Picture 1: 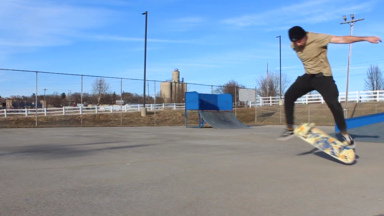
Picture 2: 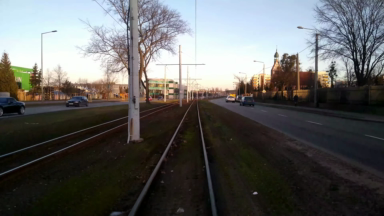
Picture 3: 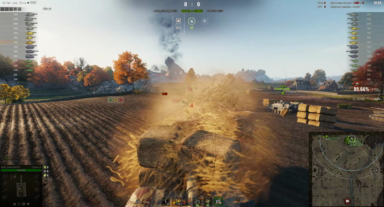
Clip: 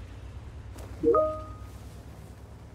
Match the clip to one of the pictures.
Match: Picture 3